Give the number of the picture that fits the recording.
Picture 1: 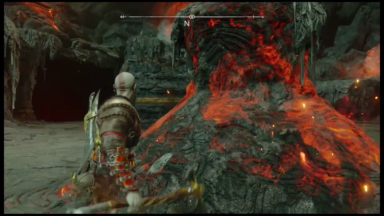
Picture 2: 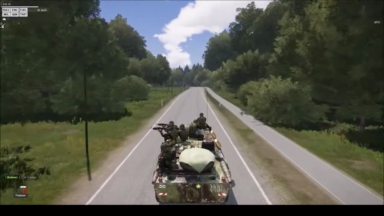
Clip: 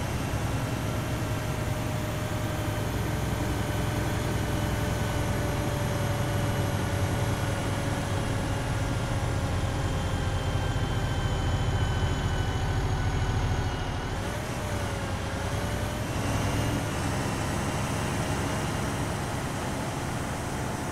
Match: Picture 2